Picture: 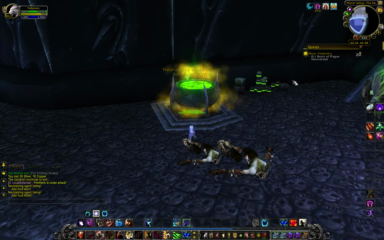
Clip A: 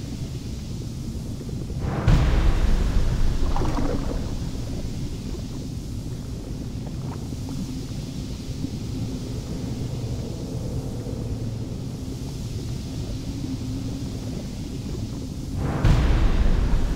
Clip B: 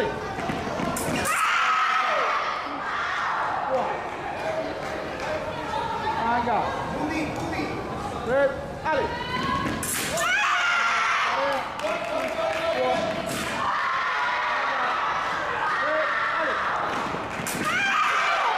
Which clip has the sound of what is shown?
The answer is A